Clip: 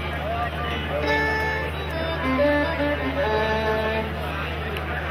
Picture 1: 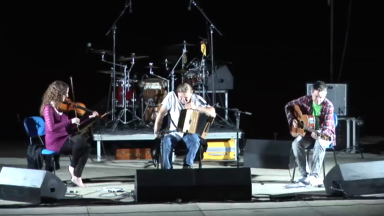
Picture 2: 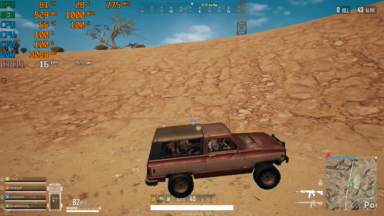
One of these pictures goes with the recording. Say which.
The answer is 1